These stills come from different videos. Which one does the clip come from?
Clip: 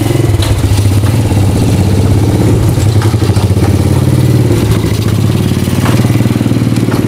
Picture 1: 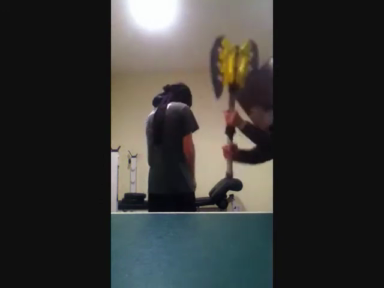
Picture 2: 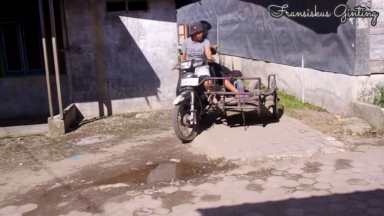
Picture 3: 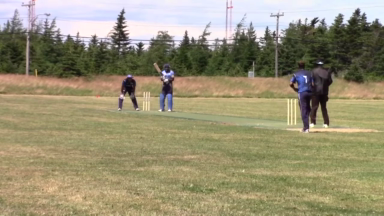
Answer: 2